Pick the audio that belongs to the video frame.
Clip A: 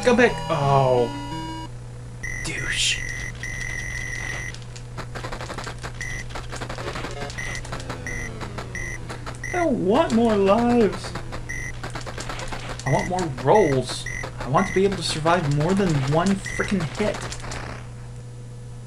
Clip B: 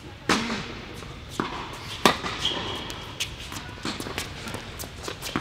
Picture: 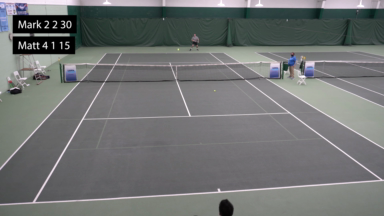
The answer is B